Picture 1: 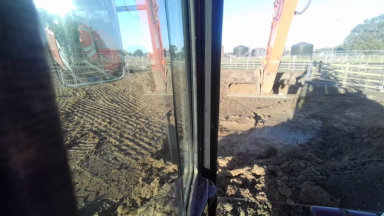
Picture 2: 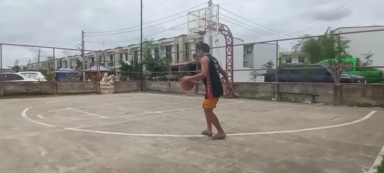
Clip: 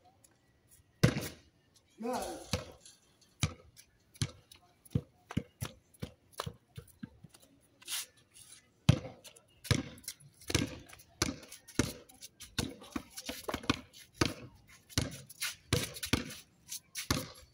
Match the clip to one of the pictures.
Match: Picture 2